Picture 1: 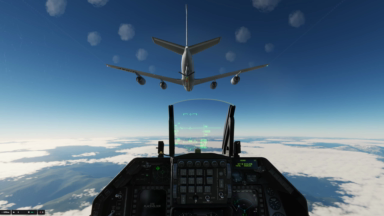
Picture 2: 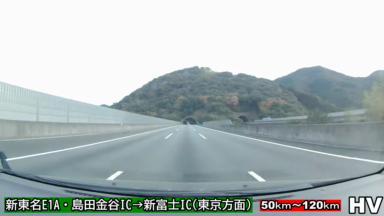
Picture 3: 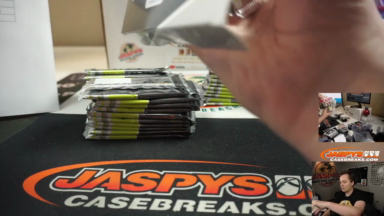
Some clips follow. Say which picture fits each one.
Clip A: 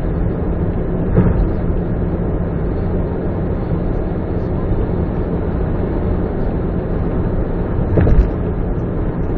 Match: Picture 2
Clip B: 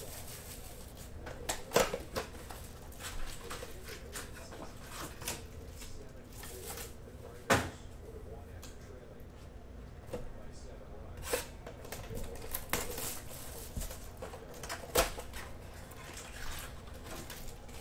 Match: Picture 3